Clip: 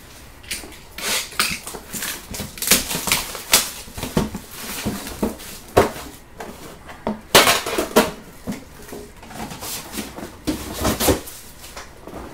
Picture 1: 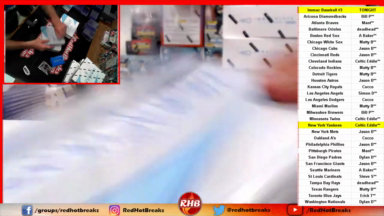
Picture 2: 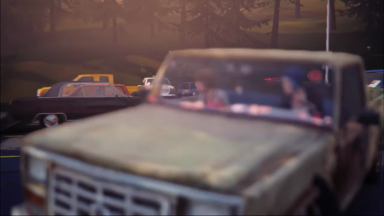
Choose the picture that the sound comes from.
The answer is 1